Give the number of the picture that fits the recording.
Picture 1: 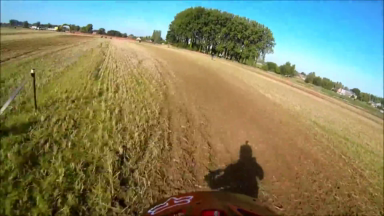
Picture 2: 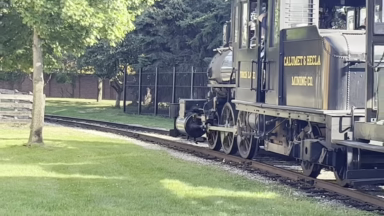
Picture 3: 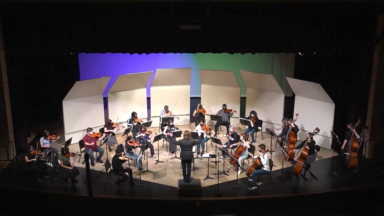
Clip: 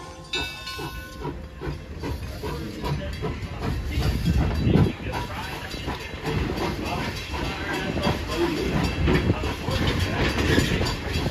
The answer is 2